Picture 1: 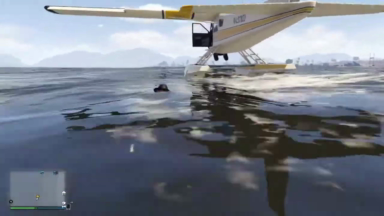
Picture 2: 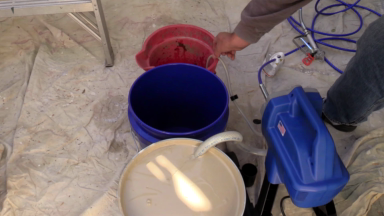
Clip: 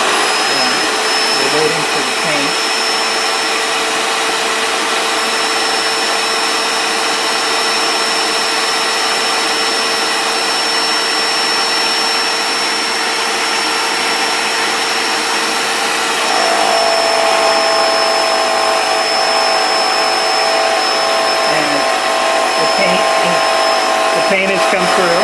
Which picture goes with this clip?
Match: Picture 2